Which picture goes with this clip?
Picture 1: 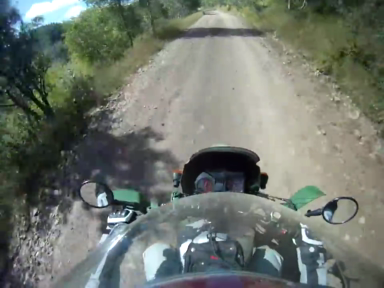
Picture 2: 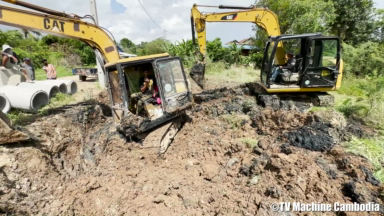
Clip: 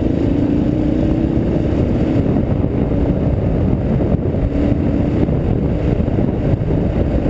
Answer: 1